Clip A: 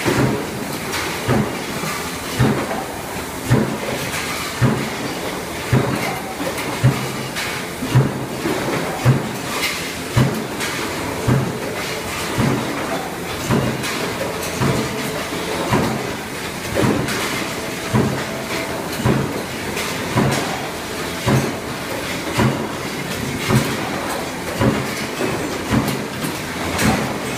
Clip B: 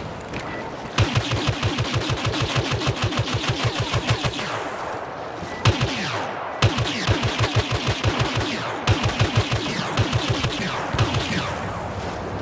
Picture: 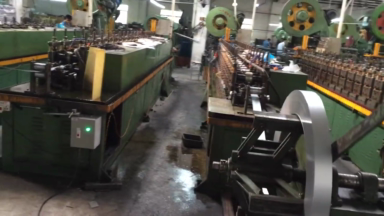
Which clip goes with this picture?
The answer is A